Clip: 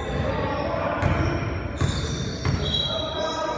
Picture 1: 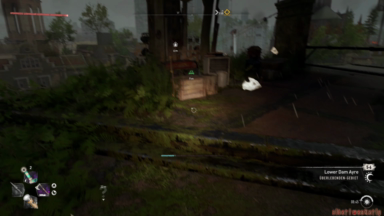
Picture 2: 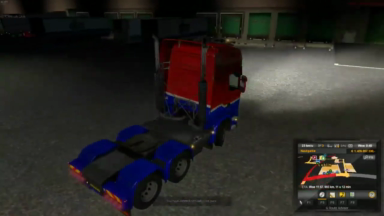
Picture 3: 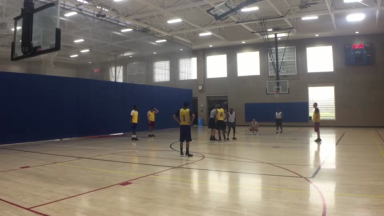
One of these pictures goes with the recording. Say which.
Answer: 3